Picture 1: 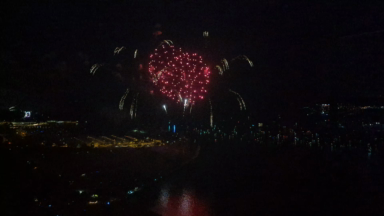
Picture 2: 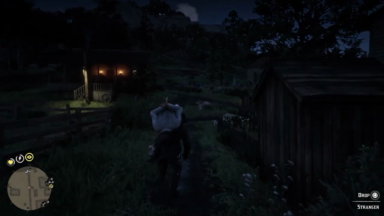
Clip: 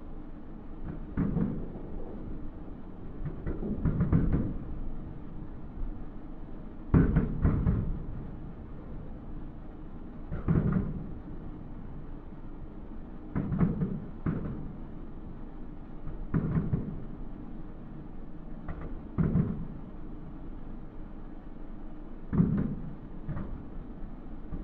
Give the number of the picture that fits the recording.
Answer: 1